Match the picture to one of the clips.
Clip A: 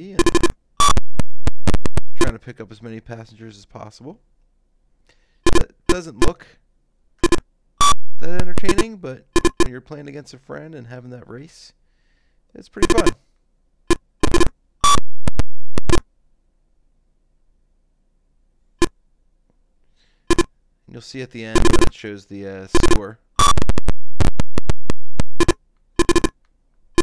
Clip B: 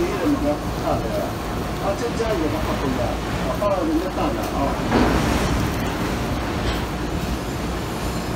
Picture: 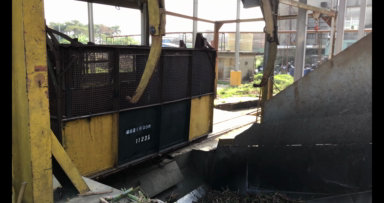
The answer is B